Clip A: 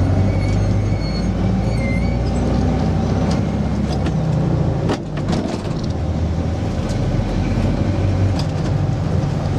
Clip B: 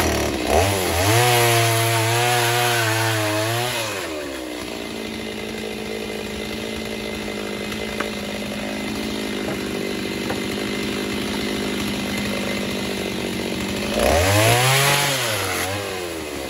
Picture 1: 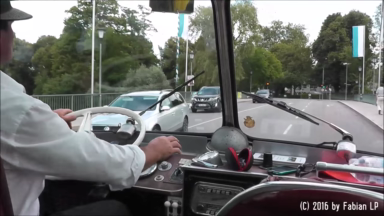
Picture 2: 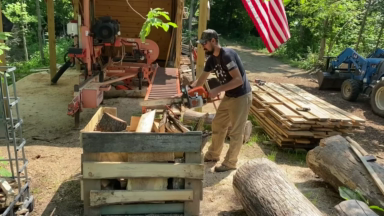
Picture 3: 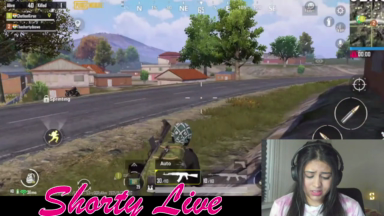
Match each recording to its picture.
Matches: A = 1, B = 2